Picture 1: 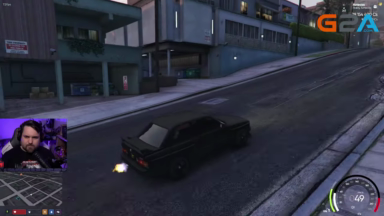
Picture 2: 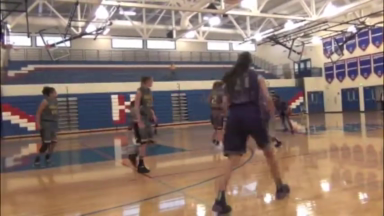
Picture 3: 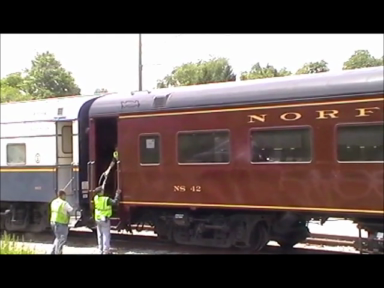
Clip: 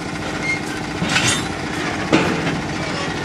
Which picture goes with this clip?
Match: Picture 3